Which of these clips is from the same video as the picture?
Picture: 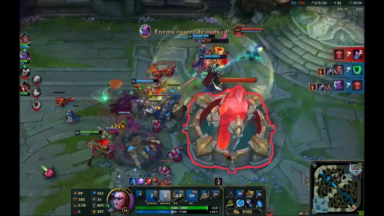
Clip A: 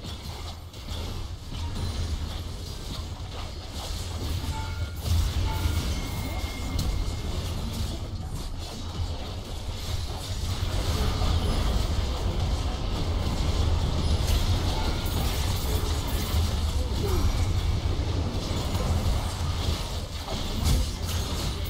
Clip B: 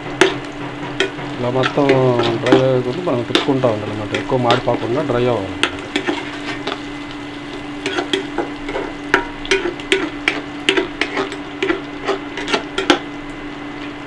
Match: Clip A